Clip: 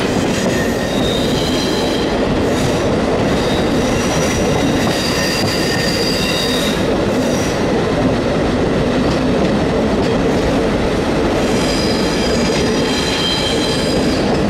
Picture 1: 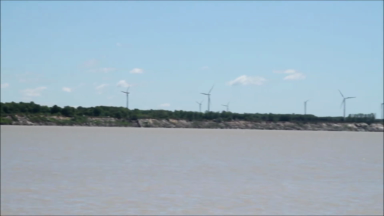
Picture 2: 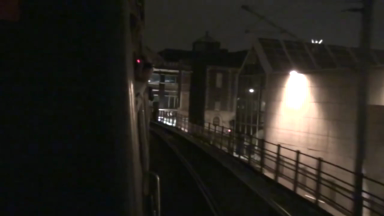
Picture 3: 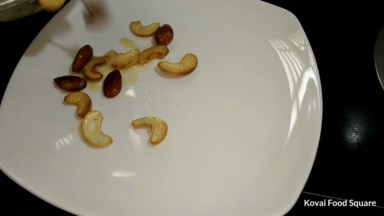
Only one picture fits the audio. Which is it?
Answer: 2